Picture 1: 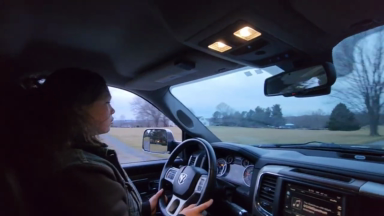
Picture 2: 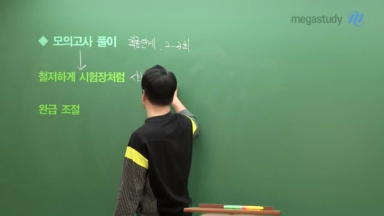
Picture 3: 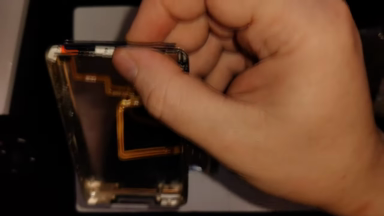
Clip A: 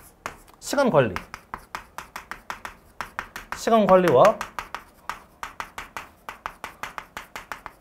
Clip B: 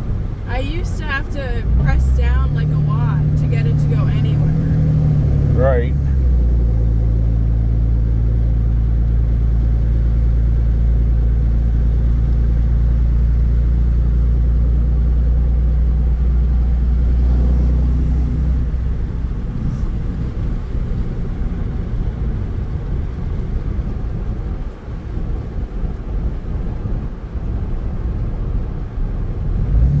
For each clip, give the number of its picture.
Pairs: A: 2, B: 1